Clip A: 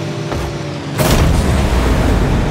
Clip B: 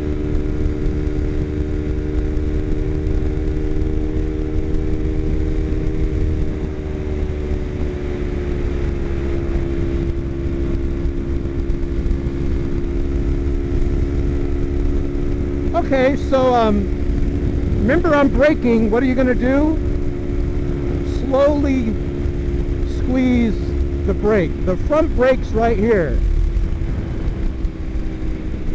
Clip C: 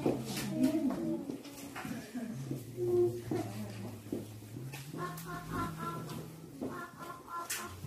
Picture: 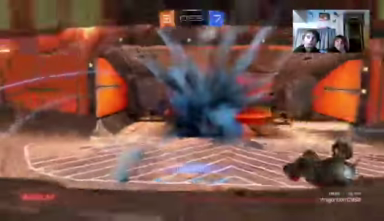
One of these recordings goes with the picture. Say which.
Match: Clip A